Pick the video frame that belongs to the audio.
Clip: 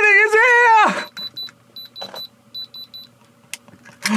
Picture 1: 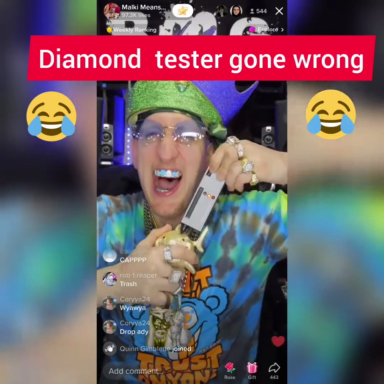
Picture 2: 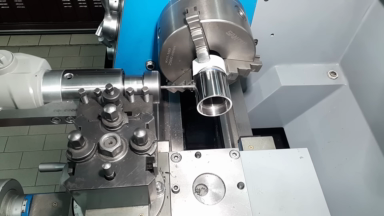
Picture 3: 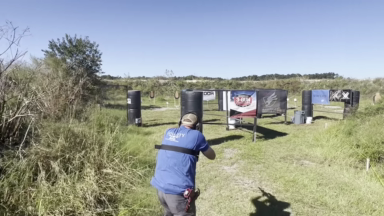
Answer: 1